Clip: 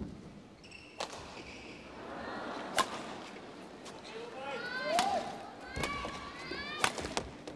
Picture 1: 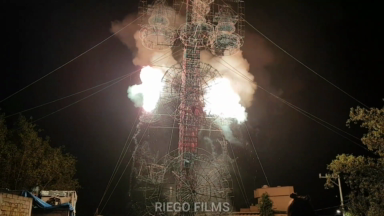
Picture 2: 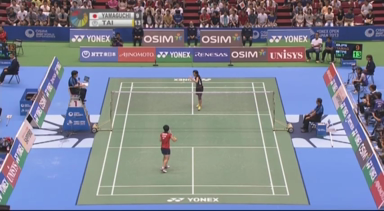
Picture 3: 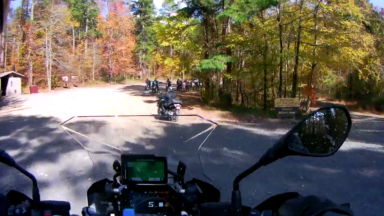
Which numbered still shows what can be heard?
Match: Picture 2